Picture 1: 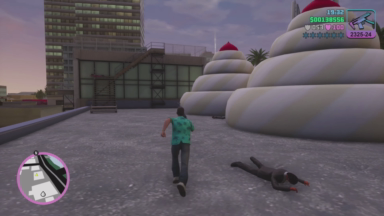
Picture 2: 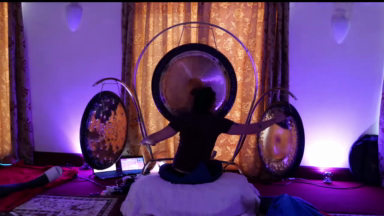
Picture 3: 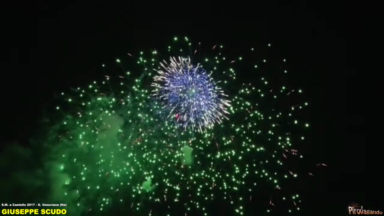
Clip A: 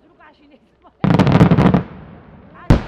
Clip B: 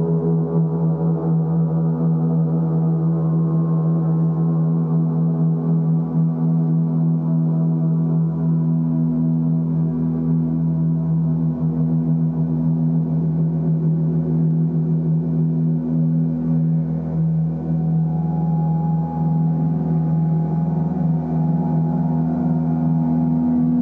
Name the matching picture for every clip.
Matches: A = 3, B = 2